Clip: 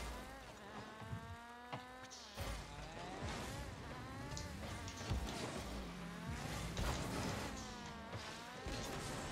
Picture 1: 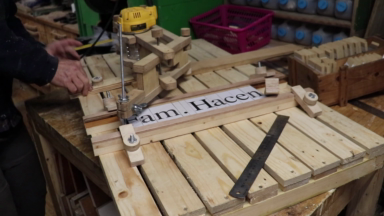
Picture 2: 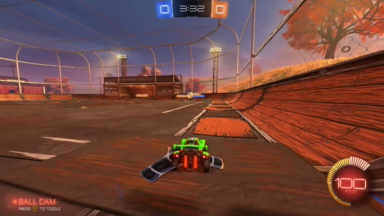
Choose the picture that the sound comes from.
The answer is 2